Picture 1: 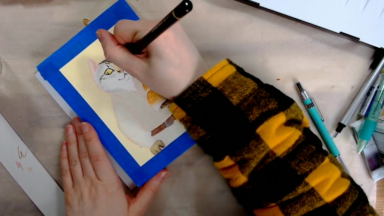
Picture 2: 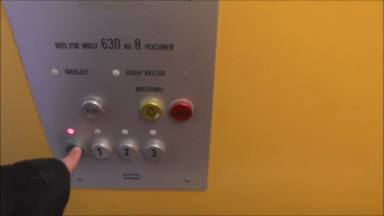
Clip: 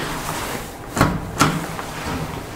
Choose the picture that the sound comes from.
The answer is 2